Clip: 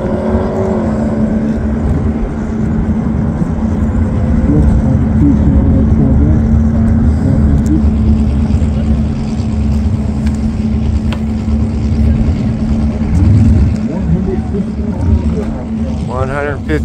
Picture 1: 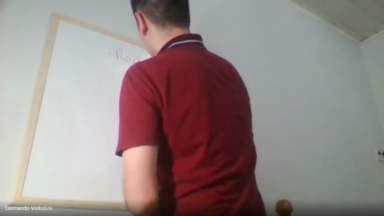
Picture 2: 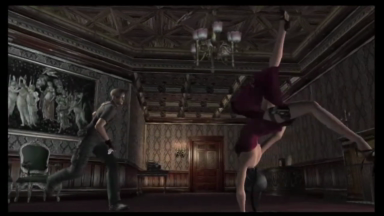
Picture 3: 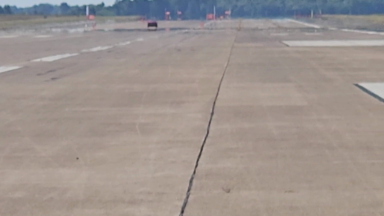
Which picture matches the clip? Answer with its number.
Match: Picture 3